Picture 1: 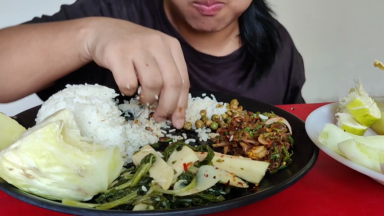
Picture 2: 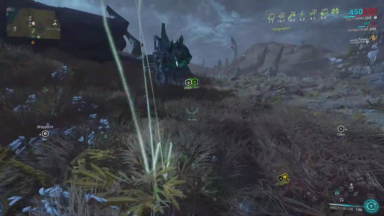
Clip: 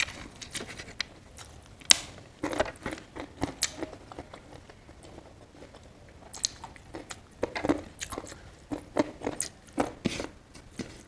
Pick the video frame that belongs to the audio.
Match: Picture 1